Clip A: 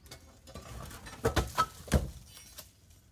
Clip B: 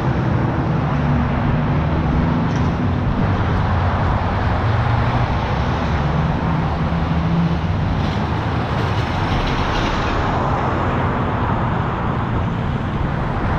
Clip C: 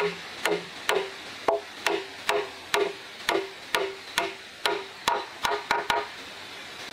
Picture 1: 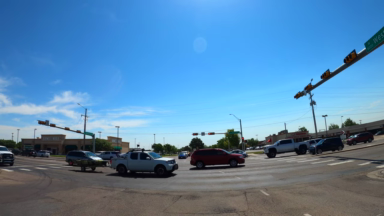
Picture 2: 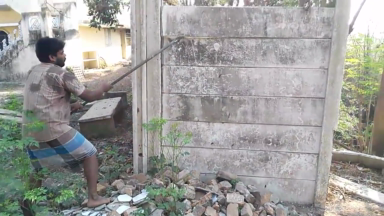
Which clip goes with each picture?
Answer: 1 B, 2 A